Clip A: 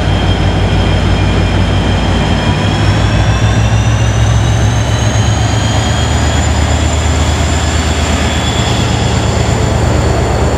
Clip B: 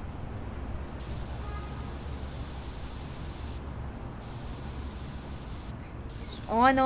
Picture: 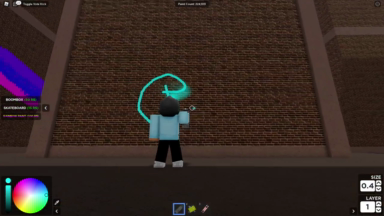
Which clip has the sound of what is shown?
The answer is B